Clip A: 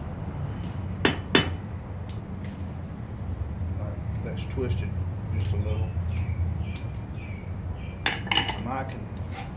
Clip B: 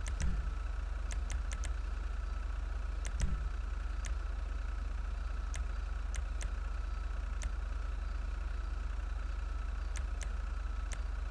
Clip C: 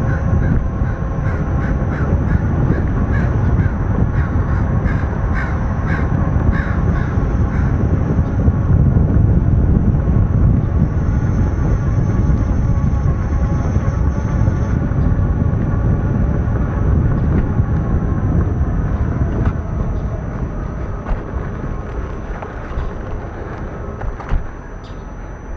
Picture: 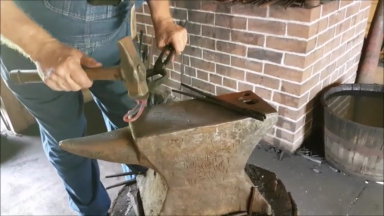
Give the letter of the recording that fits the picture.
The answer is A